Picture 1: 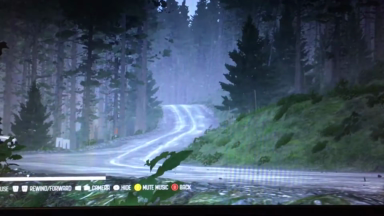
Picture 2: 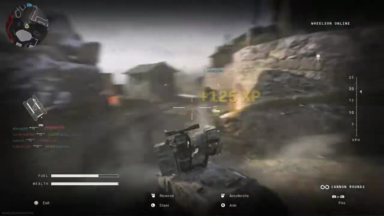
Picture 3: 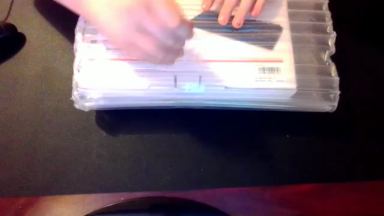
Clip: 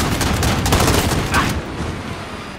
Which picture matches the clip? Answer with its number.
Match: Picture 2